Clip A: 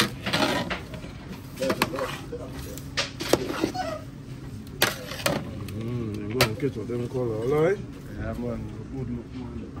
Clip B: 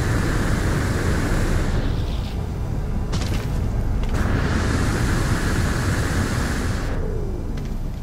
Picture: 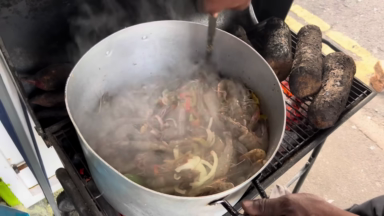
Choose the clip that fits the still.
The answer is A